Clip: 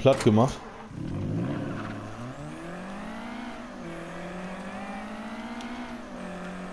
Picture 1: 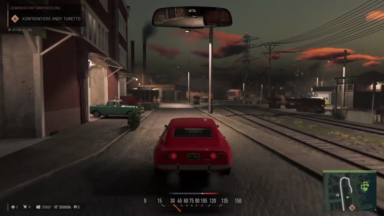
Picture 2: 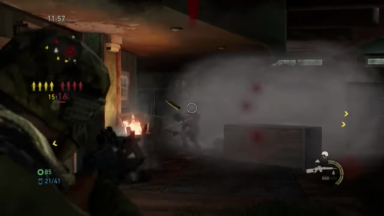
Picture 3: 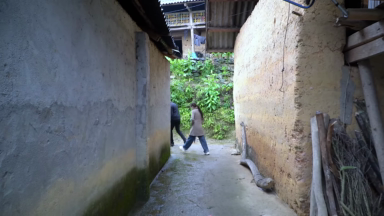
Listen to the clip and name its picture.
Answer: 1